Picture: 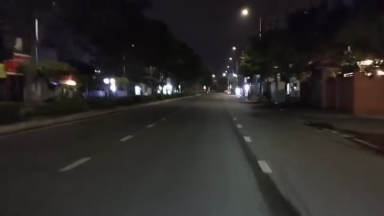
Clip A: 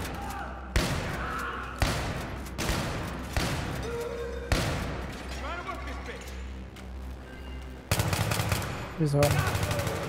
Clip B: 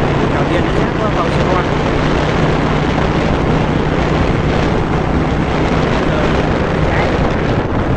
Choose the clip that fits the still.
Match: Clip B